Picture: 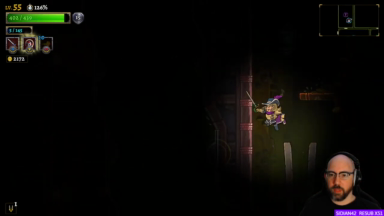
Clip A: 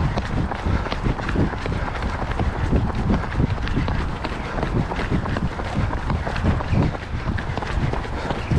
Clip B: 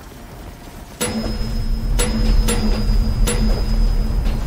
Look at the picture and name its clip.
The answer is B